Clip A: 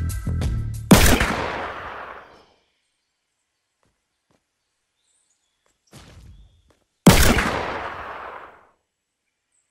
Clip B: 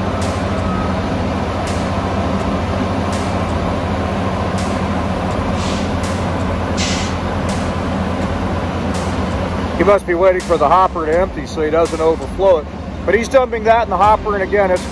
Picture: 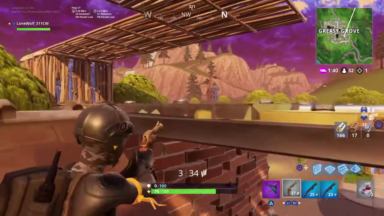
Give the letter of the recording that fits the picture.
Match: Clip A